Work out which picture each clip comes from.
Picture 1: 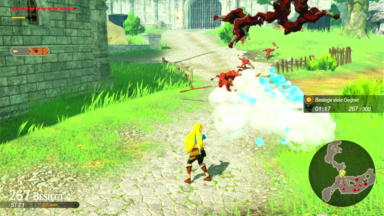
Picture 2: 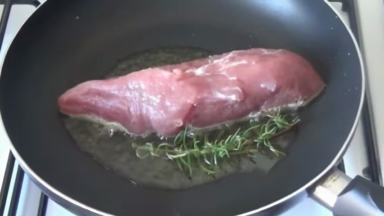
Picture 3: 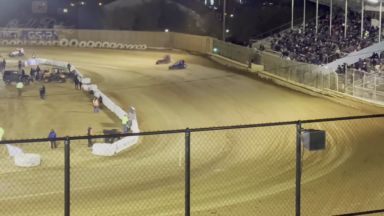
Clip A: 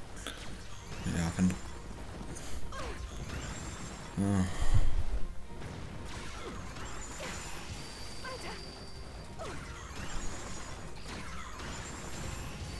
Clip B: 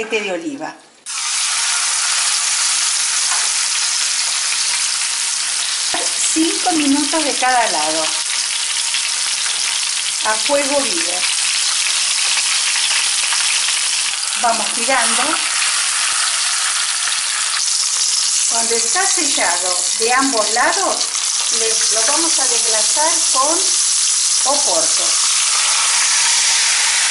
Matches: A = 1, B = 2